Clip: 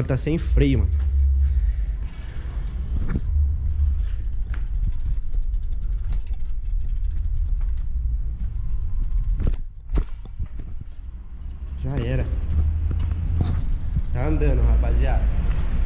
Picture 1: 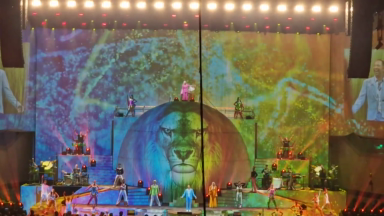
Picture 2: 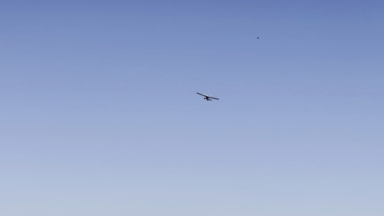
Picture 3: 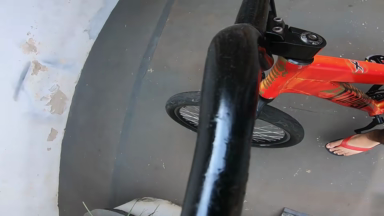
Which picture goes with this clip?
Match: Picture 3